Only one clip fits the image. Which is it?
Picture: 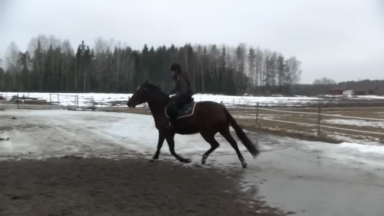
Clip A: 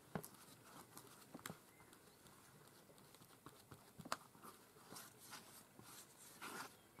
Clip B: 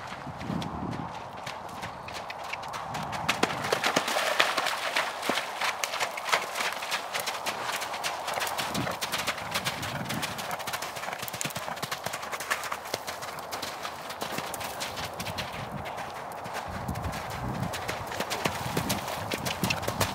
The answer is B